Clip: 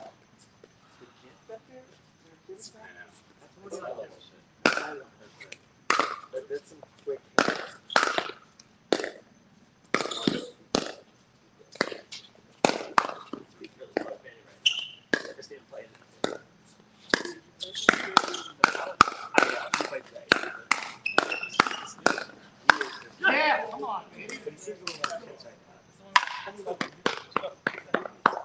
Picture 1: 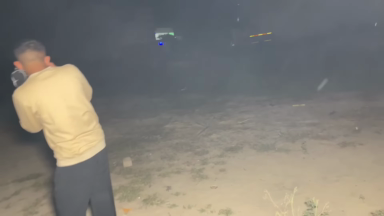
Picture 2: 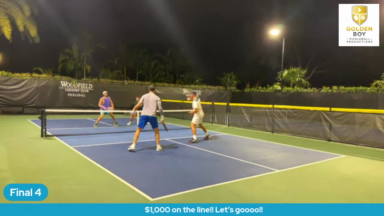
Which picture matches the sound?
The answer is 2